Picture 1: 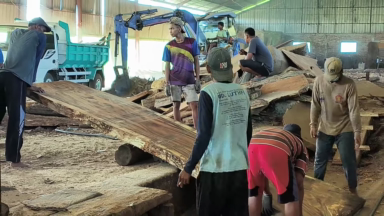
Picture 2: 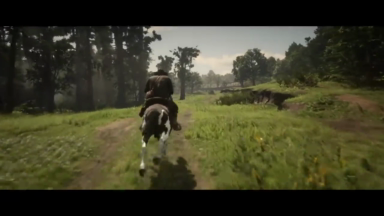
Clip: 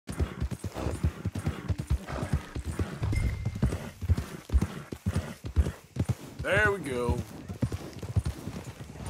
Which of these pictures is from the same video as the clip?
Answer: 2